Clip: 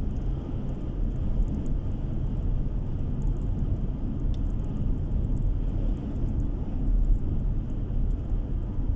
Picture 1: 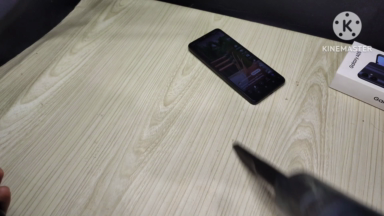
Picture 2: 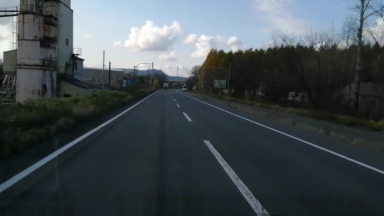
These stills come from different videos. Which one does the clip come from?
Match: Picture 2